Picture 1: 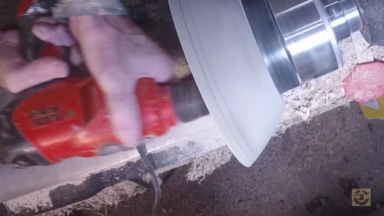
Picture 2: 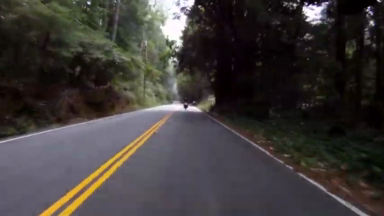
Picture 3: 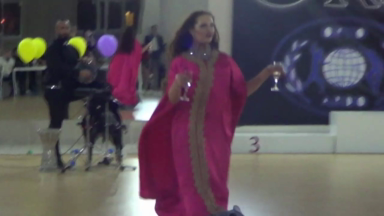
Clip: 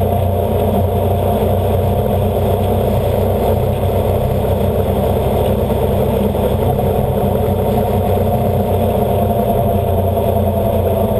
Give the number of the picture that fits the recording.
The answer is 2